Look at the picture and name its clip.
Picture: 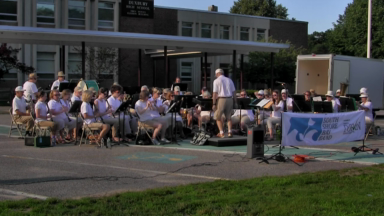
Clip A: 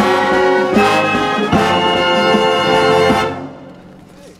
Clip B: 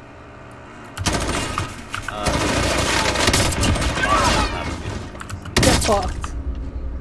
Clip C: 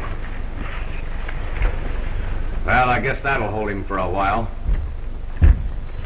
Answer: A